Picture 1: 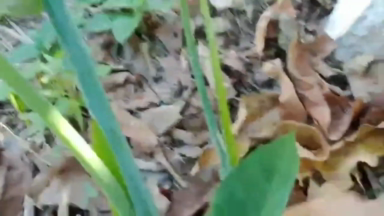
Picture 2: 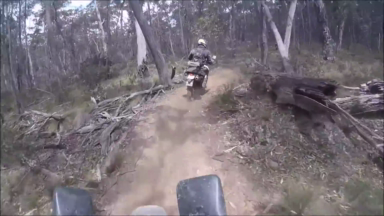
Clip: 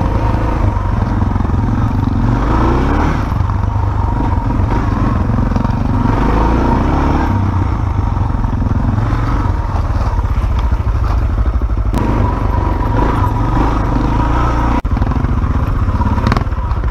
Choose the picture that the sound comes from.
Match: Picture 2